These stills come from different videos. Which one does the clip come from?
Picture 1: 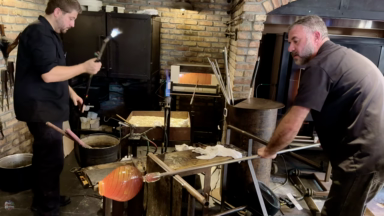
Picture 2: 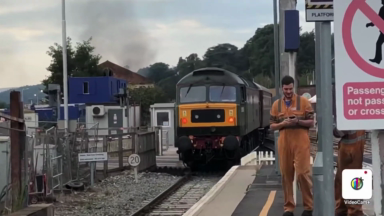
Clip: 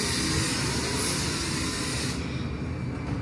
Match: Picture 1